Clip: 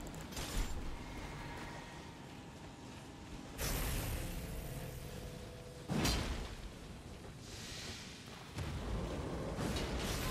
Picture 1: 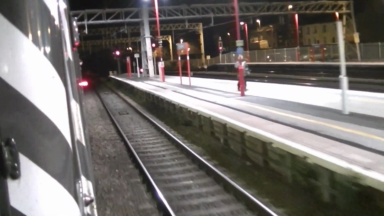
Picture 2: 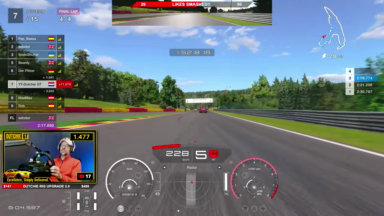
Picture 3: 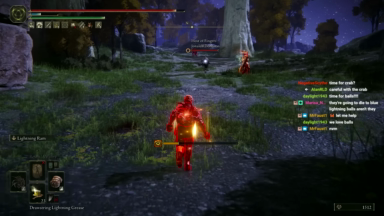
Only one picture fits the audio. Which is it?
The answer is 3